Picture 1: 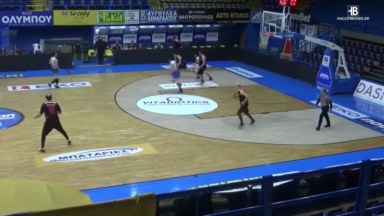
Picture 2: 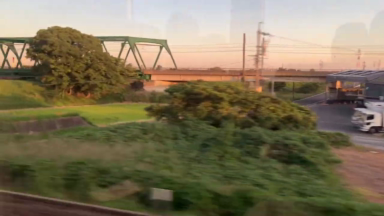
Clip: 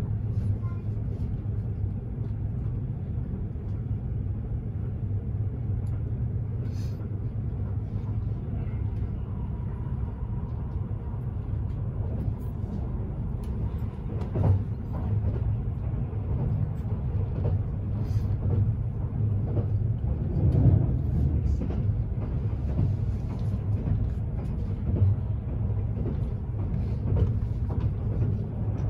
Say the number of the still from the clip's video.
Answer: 2